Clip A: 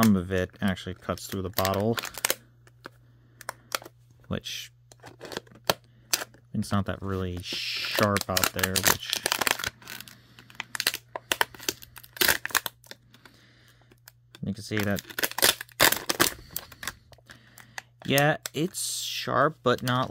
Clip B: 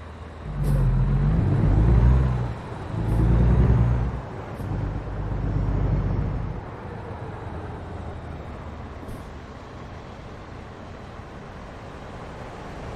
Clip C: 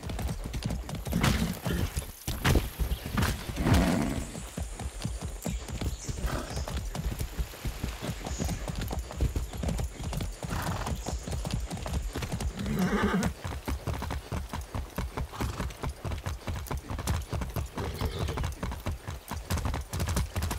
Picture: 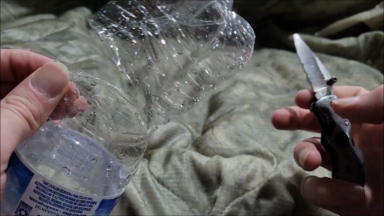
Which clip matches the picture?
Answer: A